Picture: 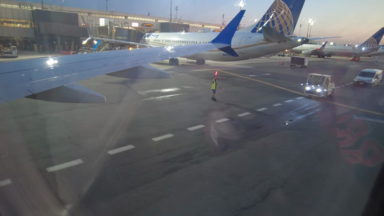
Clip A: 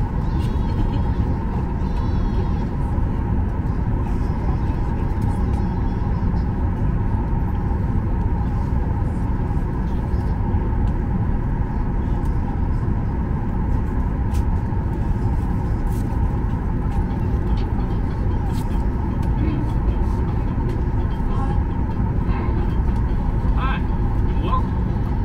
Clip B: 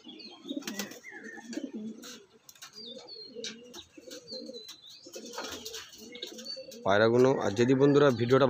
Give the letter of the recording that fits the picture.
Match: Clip A